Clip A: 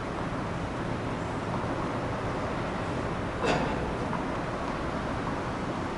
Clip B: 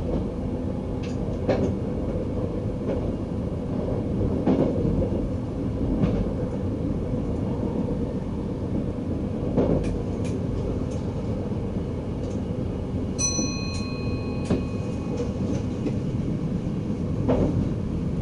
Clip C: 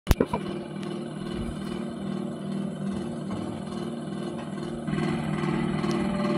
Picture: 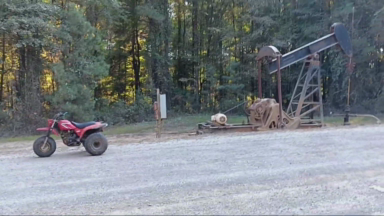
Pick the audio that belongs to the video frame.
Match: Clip C